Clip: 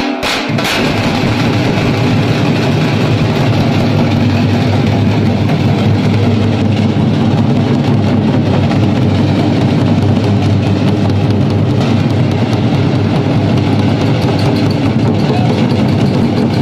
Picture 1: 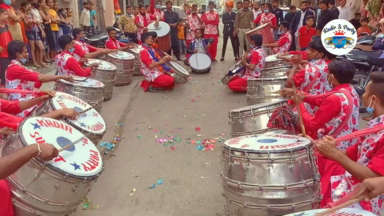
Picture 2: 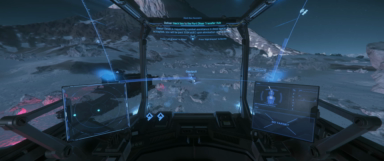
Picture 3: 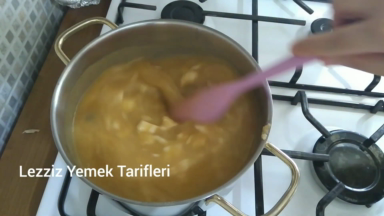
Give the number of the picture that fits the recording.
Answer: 1